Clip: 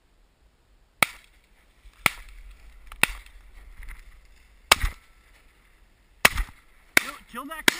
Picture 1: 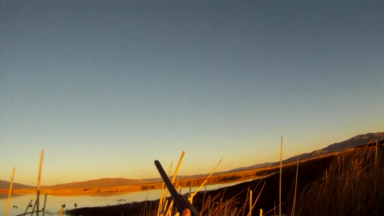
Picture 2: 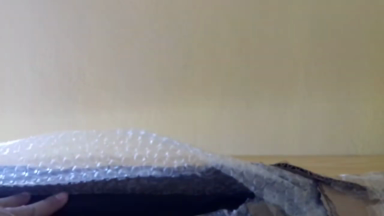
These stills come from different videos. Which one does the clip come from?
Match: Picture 1